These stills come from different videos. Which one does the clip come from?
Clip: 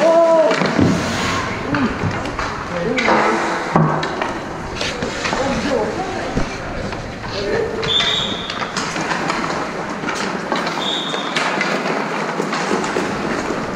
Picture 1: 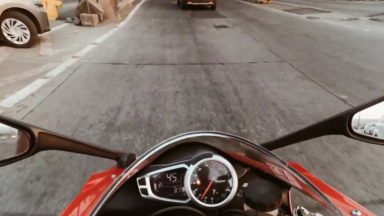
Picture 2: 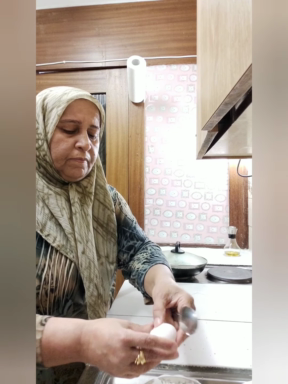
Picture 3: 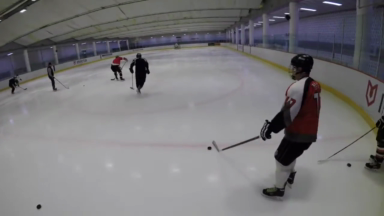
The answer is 3